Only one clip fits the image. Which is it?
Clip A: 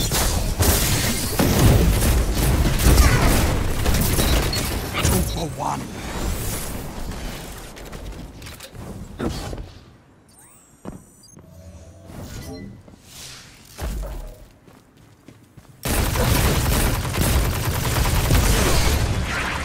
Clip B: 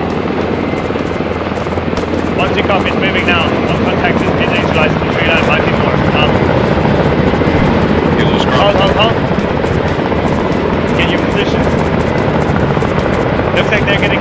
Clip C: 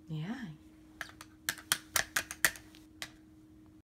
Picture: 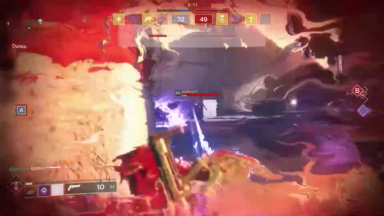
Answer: A